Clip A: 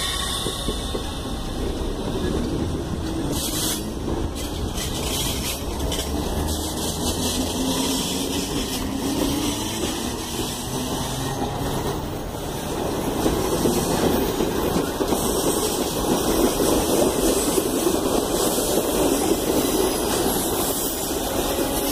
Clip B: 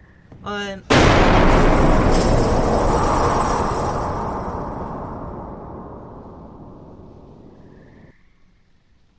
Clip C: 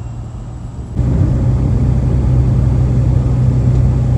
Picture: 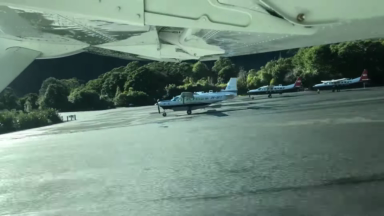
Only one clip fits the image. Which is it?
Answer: C